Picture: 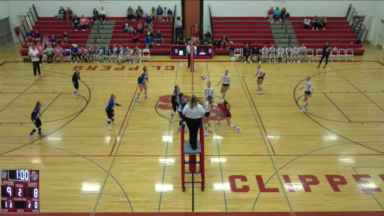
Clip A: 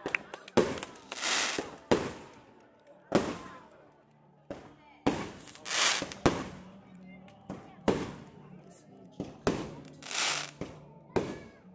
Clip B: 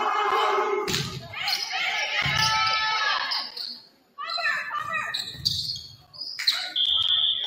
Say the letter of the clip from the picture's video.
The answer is B